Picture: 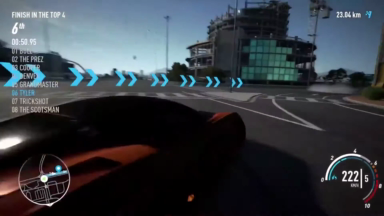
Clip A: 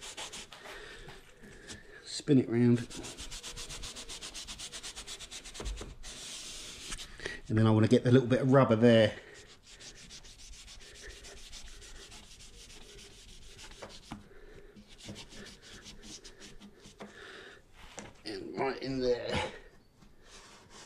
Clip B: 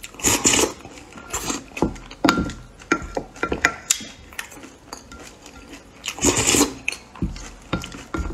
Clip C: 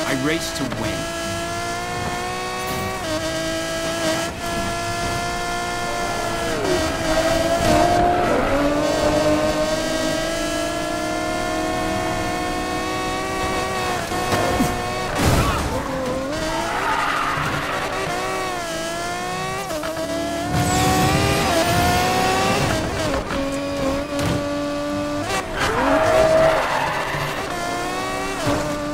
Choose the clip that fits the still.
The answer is C